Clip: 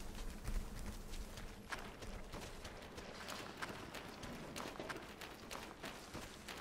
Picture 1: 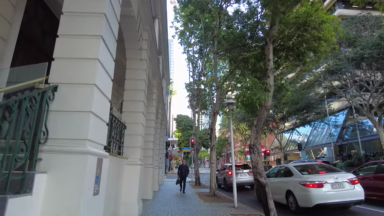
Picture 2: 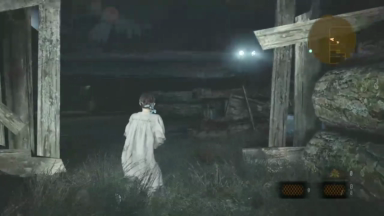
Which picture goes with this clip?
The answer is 2